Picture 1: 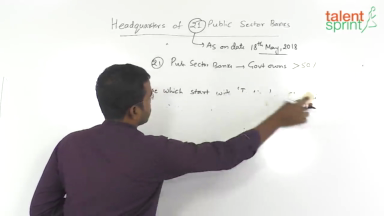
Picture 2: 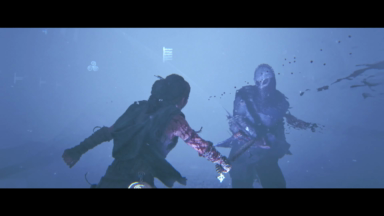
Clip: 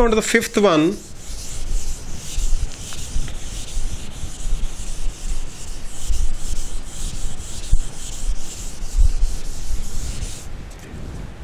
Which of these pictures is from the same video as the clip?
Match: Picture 1